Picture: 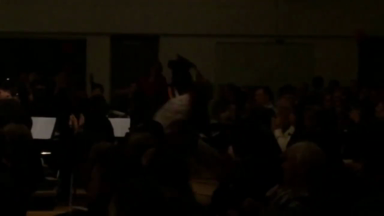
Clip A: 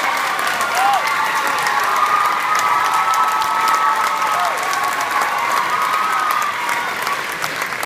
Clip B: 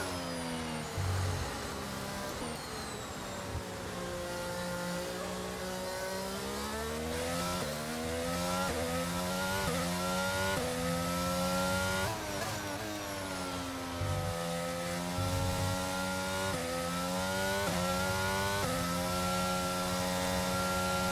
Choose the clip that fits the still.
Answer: A